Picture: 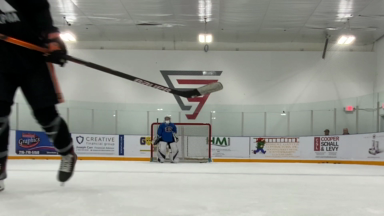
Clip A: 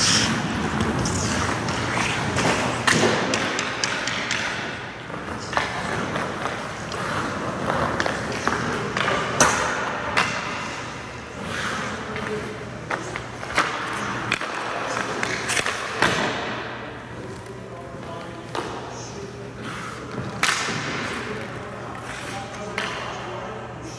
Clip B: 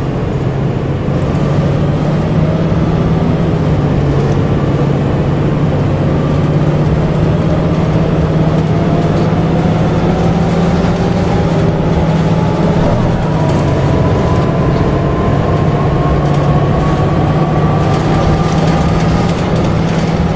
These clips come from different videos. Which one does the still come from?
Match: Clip A